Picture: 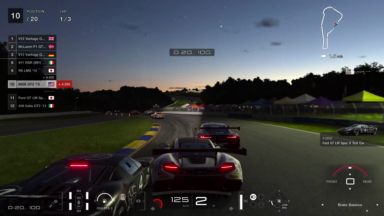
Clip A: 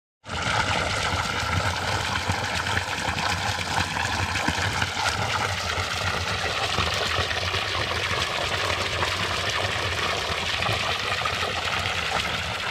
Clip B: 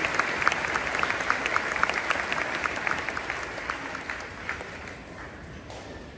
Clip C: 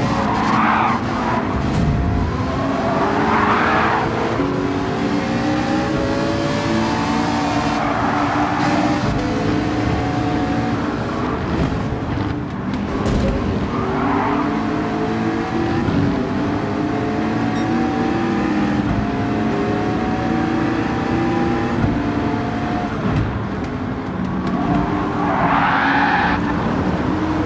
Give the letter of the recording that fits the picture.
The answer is C